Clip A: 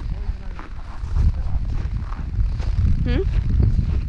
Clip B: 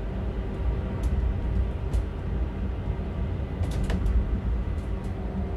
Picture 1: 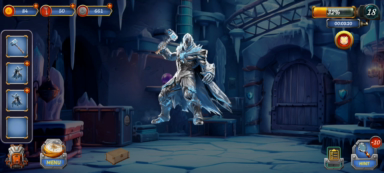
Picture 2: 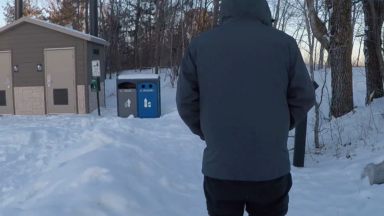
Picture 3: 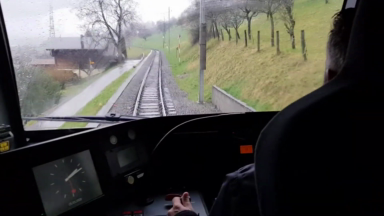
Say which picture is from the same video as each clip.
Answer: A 2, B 3